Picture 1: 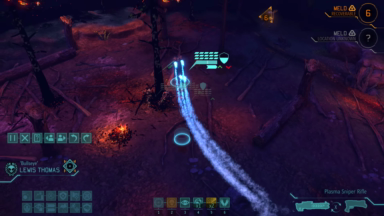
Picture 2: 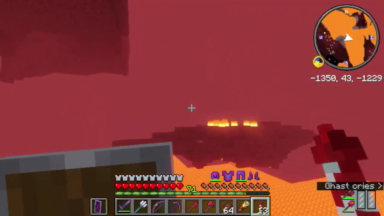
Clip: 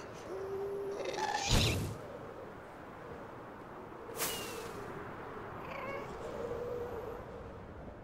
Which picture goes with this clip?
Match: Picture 2